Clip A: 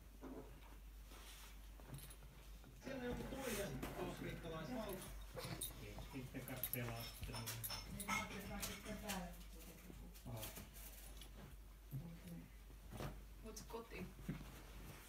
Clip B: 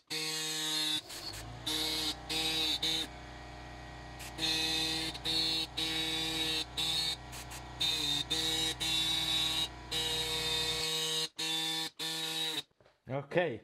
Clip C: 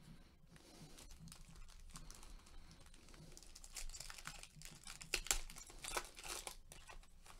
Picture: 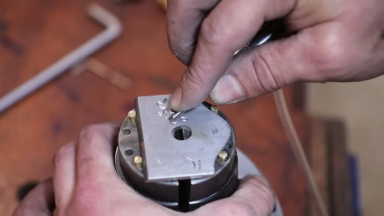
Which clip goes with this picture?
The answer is B